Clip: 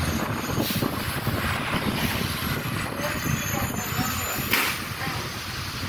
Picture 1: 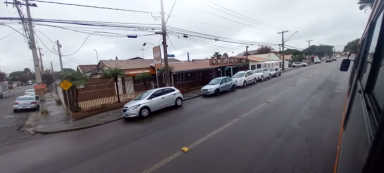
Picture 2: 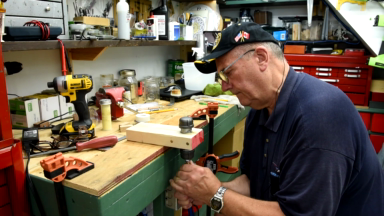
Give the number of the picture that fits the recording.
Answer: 1